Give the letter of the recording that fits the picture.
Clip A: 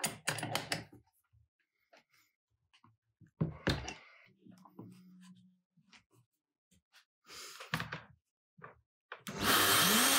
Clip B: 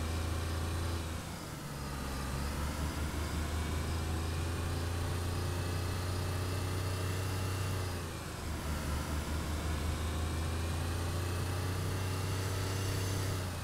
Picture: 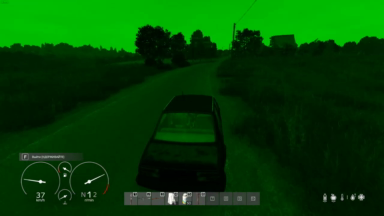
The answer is B